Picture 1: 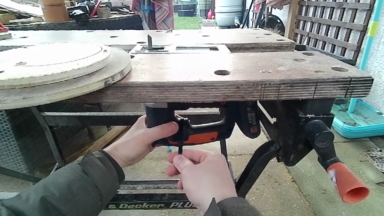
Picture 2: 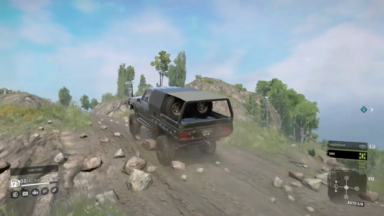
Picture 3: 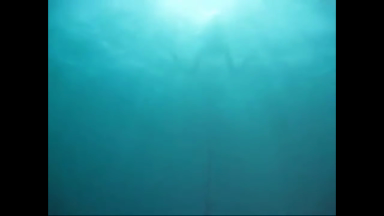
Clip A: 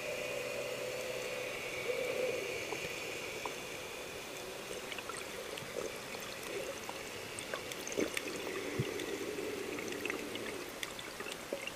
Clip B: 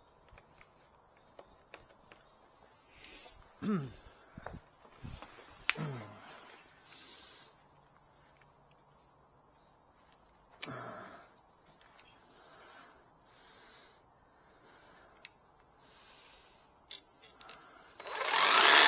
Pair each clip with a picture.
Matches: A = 3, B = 1